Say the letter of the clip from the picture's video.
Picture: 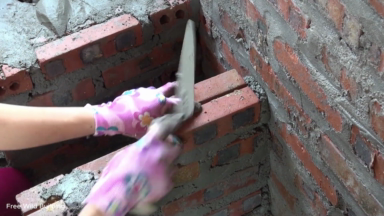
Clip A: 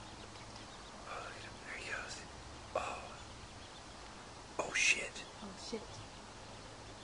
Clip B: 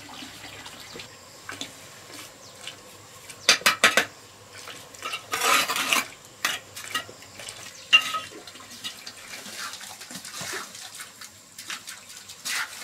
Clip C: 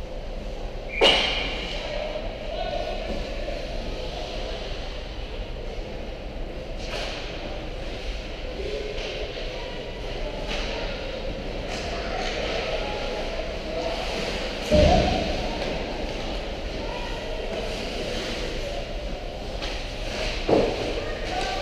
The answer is B